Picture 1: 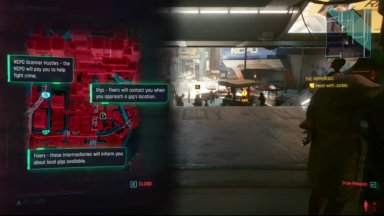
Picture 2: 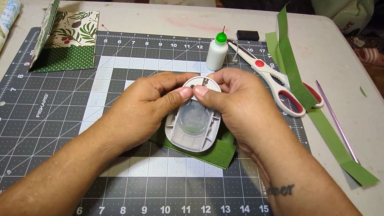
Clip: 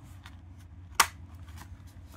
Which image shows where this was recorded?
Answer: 2